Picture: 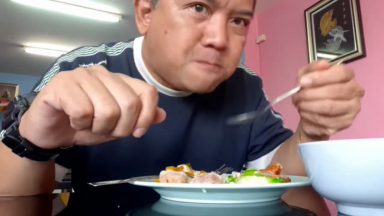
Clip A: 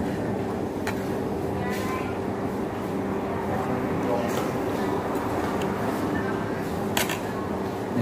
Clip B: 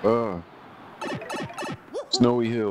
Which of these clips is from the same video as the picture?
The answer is A